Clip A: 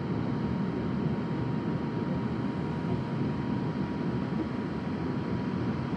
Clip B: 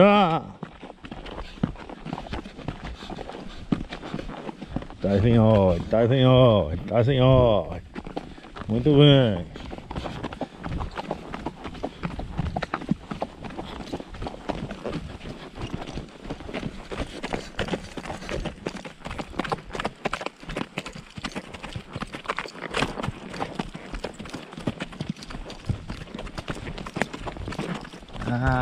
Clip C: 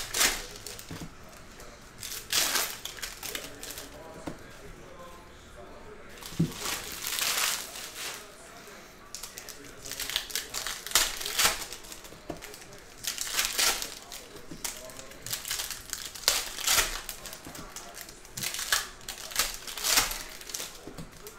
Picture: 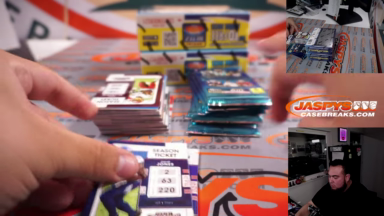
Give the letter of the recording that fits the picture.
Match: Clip C